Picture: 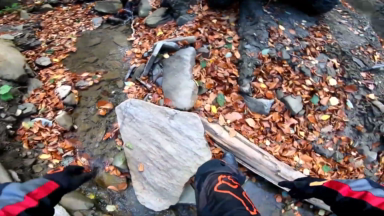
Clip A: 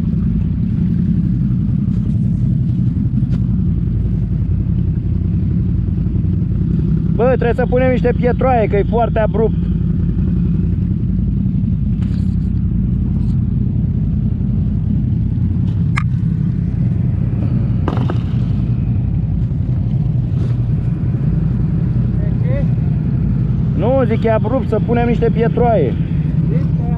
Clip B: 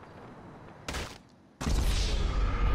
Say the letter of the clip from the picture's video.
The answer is A